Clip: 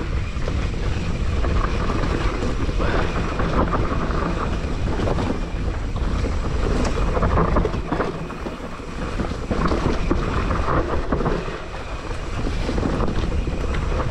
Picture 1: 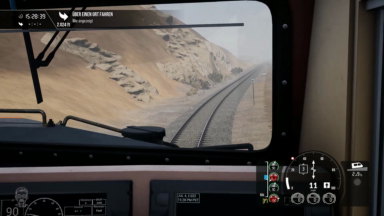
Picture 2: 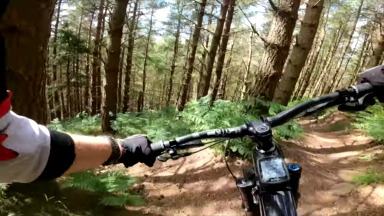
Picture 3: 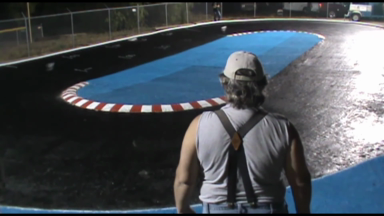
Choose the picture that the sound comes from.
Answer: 2